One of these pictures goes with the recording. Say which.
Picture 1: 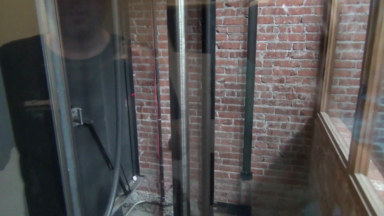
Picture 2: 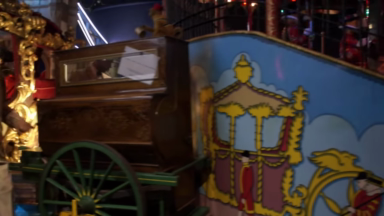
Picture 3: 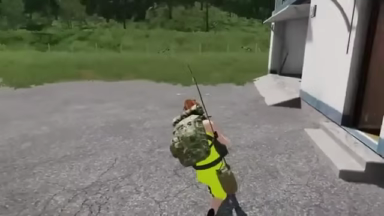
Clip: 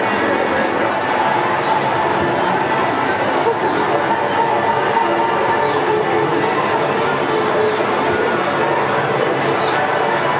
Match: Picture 2